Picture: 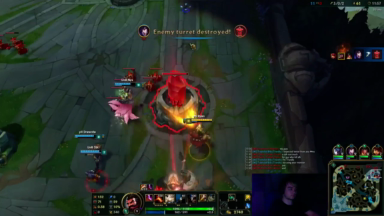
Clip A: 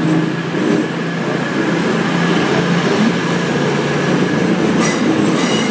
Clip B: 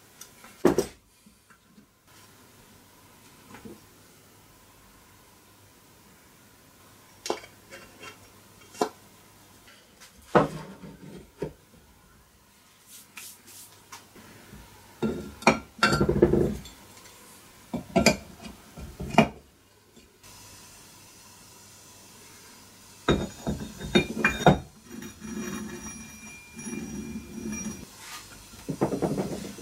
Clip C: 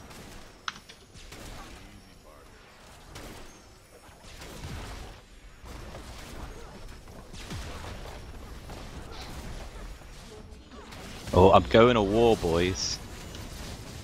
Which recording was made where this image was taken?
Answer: C